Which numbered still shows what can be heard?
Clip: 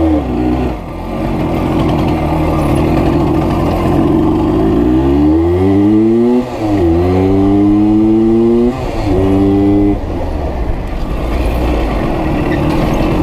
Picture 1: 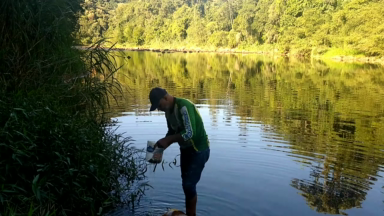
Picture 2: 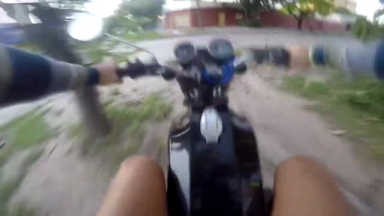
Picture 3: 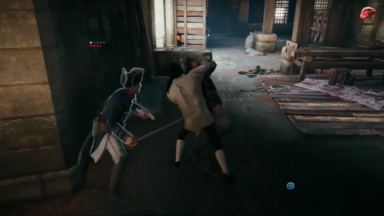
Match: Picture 2